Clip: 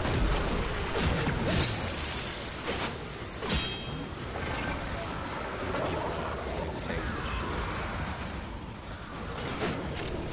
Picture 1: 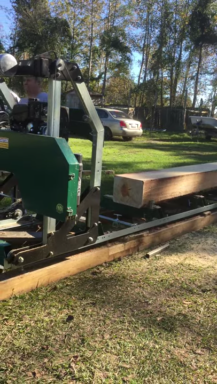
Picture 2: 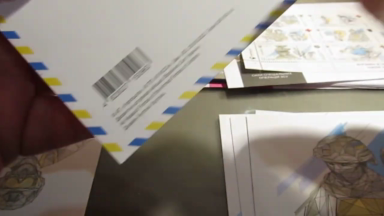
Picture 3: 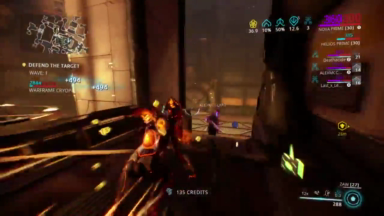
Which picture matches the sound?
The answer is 3